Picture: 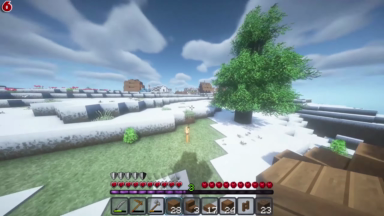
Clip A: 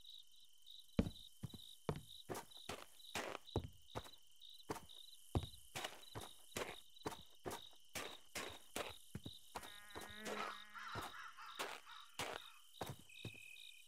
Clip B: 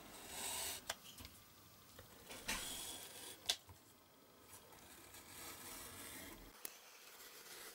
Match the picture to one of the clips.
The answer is A